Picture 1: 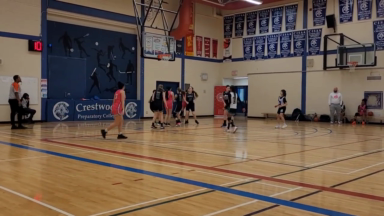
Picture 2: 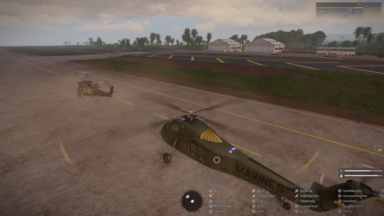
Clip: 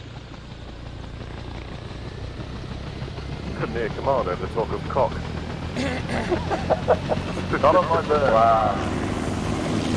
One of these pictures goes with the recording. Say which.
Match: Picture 2